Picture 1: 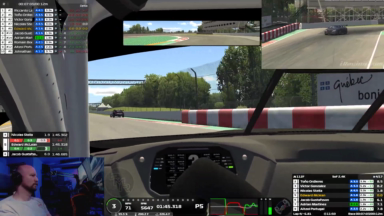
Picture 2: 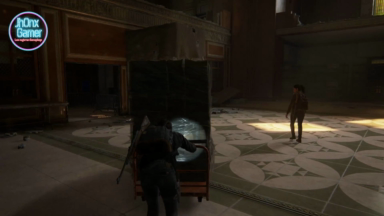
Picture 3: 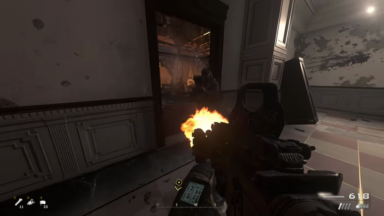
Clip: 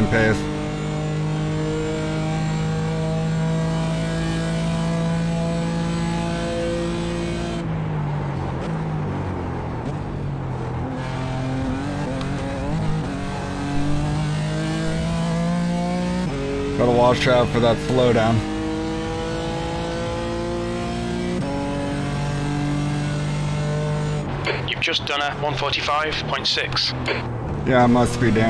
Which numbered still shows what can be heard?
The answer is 1